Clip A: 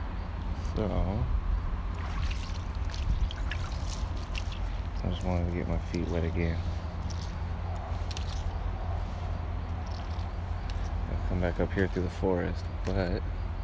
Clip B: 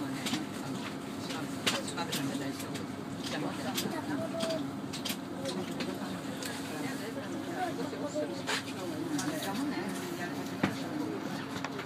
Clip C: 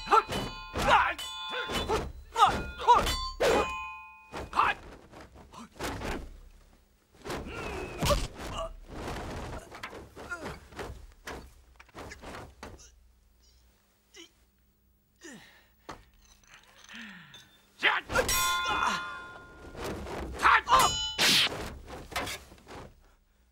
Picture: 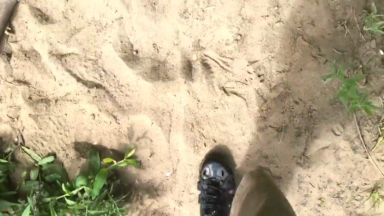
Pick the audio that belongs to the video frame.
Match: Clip A